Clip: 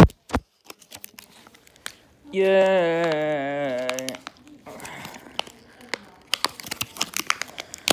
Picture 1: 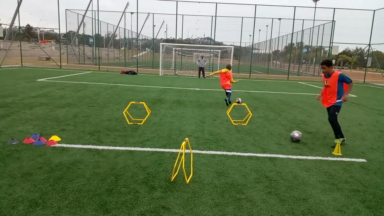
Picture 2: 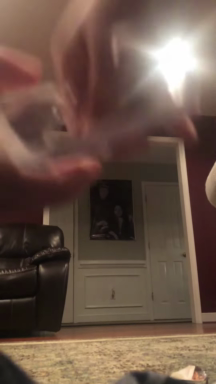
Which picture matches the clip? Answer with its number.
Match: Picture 2